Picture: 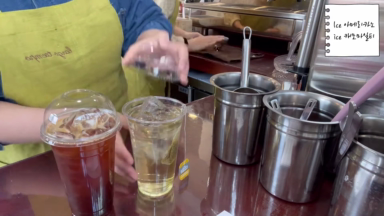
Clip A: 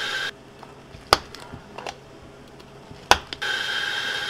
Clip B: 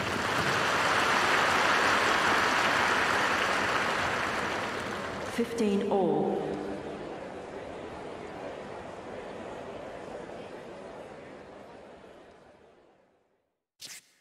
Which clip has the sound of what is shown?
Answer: A